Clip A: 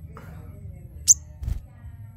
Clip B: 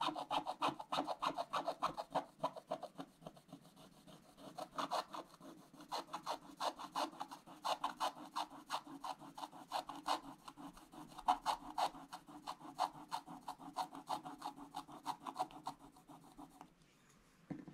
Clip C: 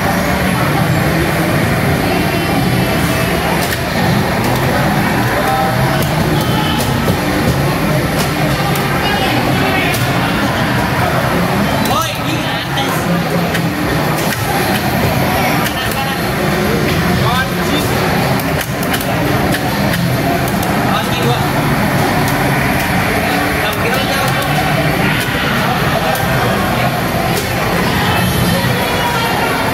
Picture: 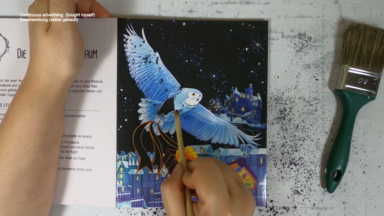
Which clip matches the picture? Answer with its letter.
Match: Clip B